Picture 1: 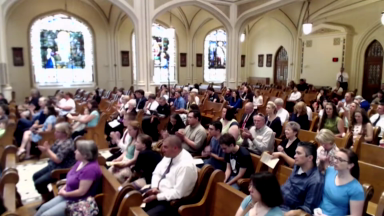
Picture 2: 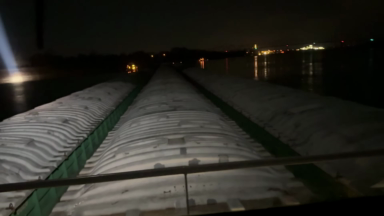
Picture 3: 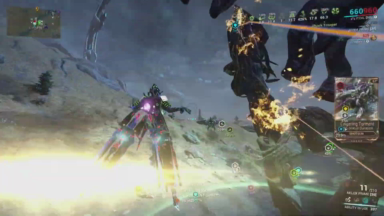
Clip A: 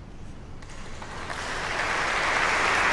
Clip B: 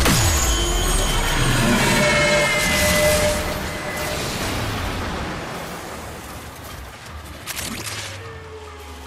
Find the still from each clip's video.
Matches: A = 1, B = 3